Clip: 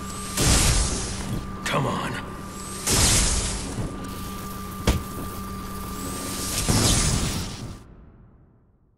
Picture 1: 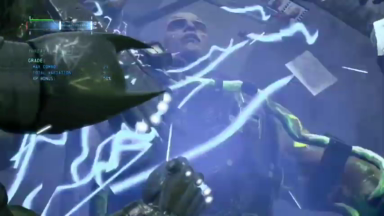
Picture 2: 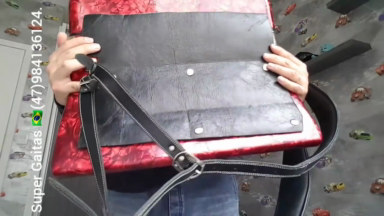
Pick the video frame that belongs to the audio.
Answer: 1